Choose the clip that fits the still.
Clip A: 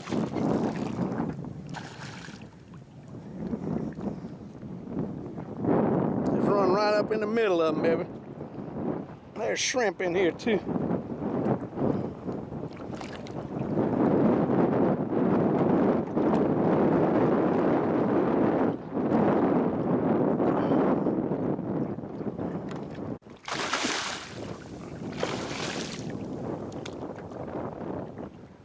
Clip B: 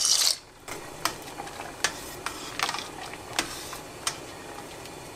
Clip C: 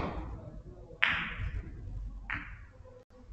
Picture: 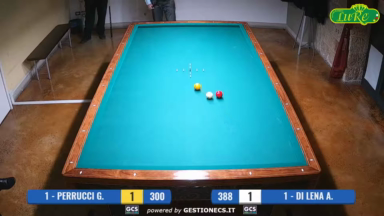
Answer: C